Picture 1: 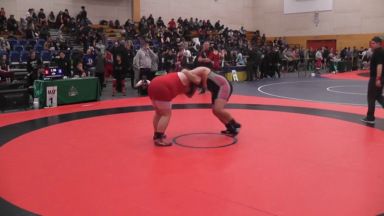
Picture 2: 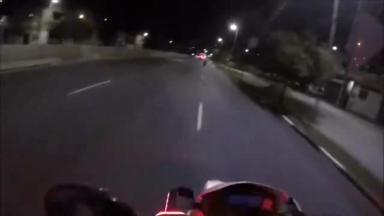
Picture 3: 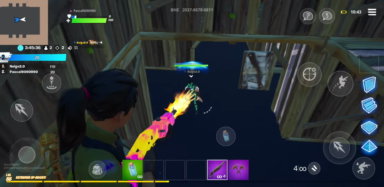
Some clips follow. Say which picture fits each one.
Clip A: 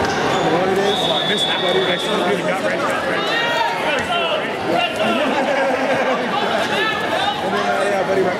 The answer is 1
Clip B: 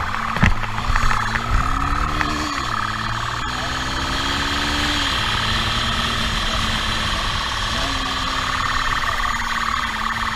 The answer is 2